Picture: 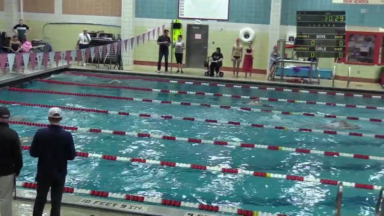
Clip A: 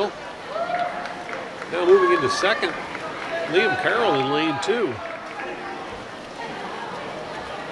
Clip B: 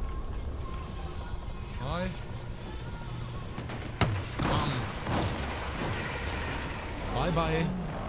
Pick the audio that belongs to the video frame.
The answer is A